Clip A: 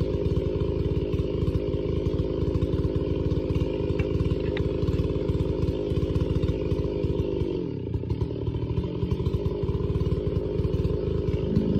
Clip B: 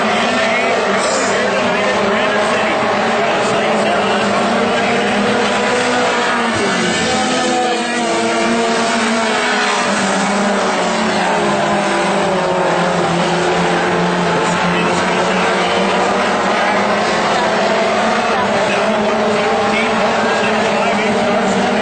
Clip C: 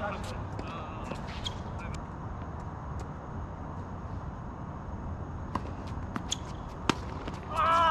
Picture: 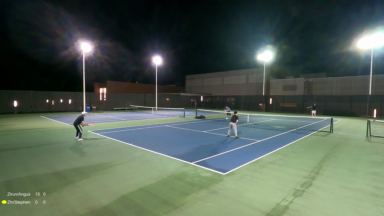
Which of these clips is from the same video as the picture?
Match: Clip C